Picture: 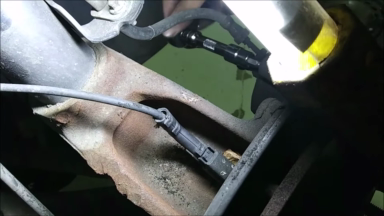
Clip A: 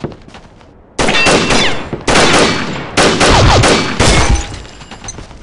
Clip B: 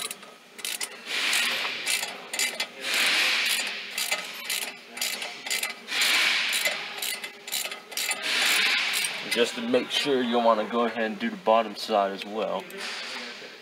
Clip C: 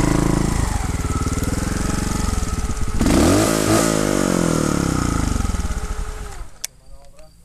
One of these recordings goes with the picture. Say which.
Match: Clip B